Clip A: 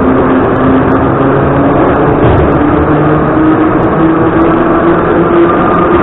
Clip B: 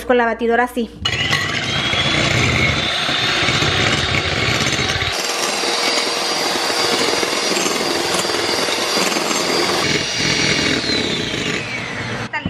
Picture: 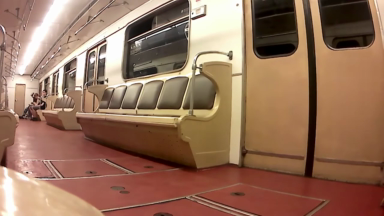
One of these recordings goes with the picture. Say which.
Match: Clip A